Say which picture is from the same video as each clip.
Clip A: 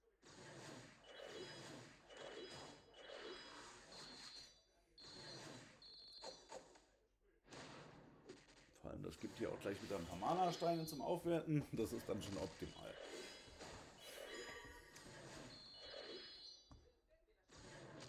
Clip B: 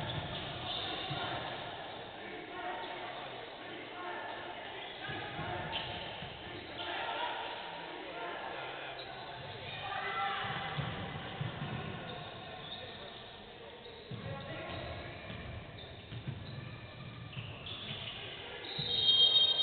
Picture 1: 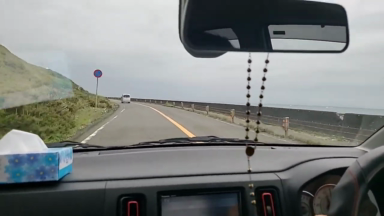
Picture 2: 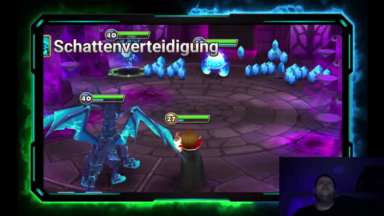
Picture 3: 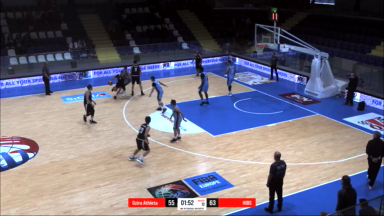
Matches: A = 2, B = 3